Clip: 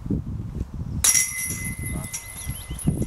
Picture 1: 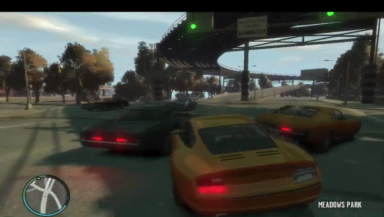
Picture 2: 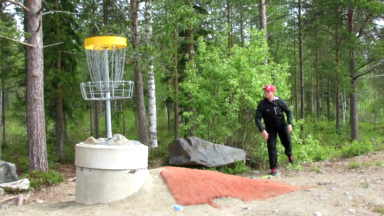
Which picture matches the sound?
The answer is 2